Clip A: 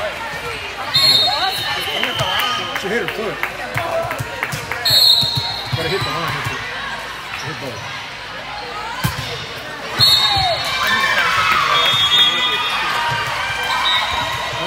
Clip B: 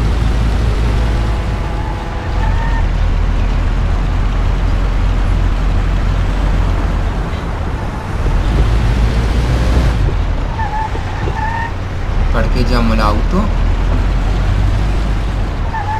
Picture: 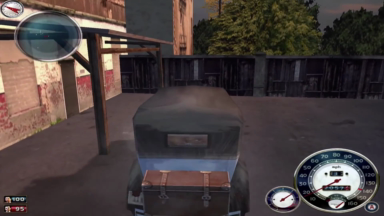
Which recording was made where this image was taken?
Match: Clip B